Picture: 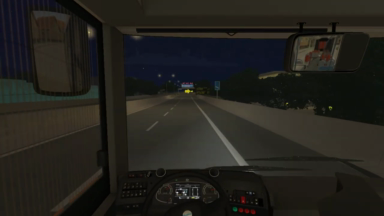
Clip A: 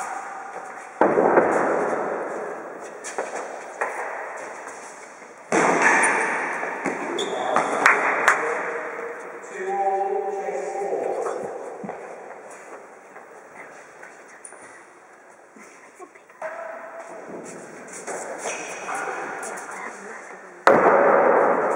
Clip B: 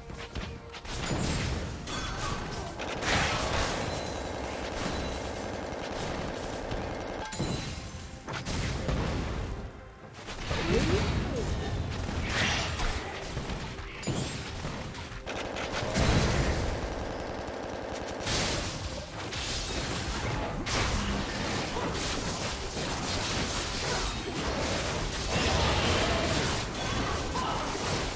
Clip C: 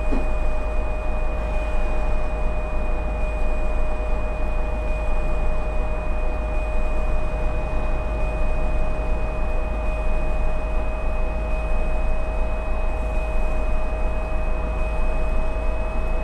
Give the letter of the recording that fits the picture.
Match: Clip C